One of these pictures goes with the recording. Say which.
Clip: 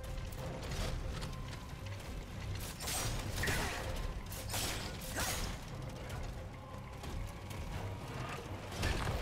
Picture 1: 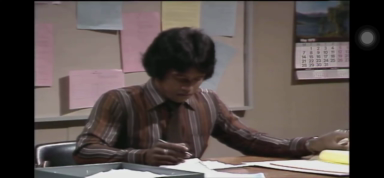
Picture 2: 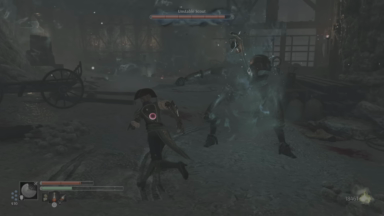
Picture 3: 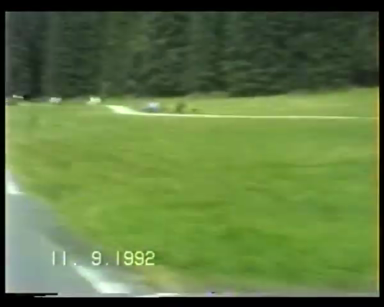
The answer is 2